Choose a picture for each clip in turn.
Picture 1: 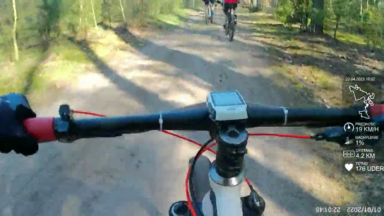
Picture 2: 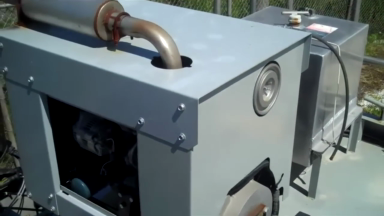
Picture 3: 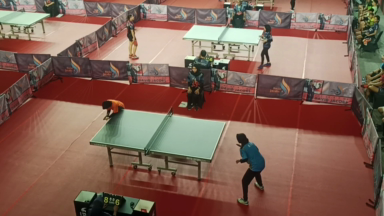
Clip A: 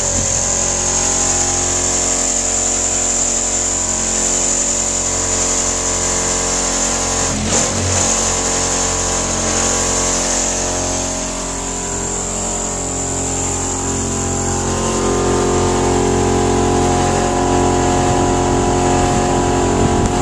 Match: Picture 2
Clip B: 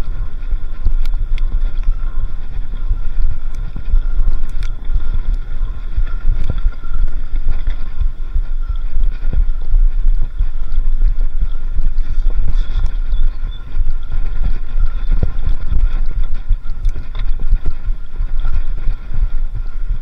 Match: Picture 1